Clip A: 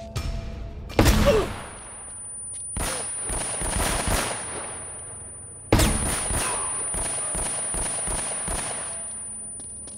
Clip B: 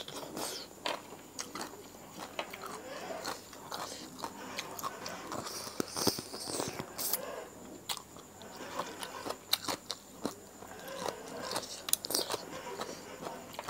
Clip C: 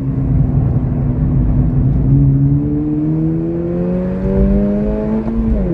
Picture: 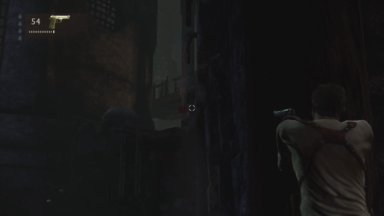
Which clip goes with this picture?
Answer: A